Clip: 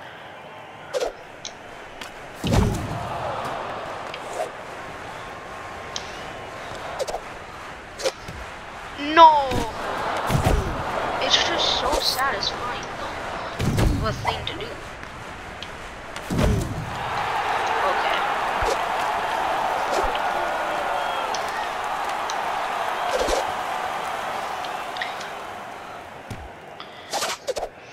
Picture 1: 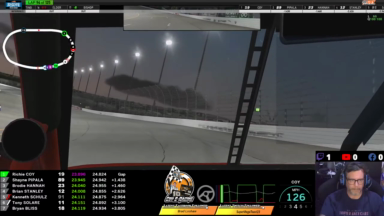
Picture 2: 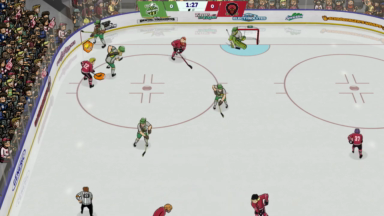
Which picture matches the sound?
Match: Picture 2